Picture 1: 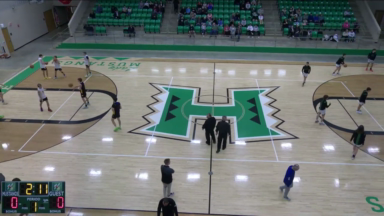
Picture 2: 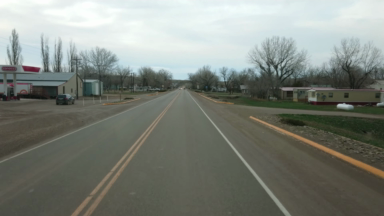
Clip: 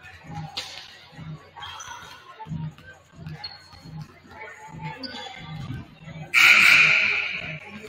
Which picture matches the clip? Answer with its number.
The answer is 1